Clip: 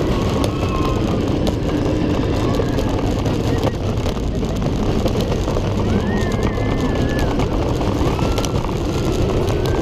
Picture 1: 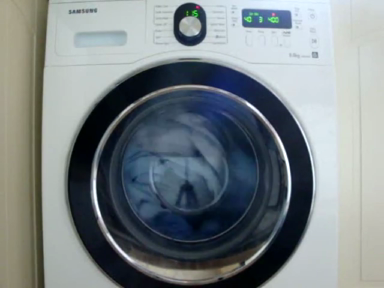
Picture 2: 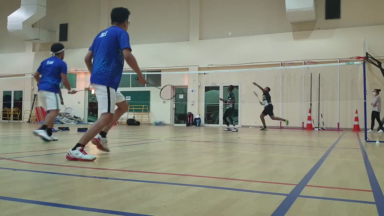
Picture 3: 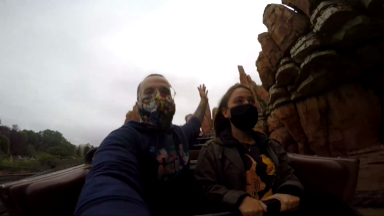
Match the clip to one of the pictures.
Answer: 3